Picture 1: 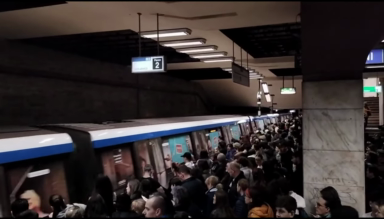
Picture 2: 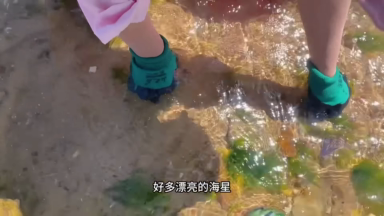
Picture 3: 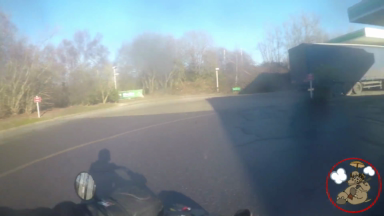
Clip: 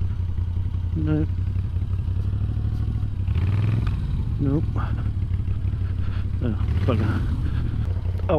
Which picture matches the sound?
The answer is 3